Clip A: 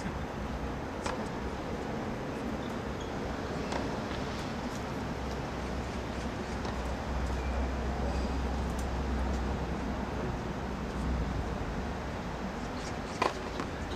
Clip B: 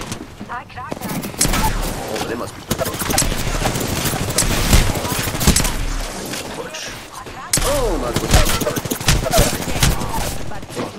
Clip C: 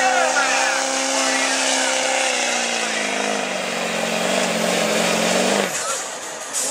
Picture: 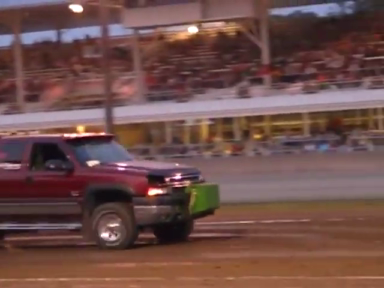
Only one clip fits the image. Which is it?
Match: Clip C